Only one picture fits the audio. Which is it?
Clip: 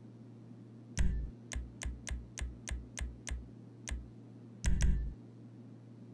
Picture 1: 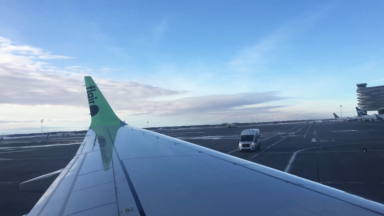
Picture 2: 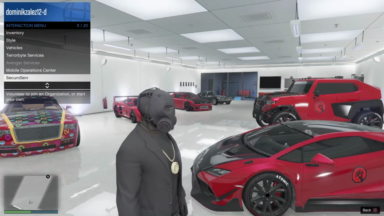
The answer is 2